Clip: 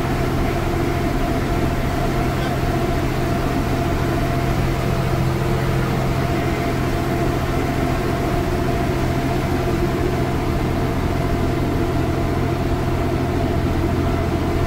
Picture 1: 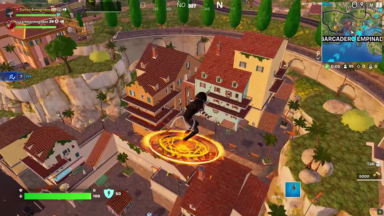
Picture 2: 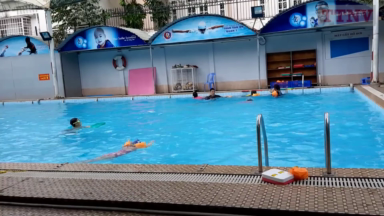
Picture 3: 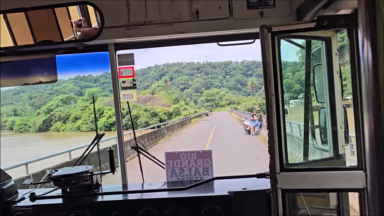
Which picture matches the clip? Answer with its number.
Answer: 3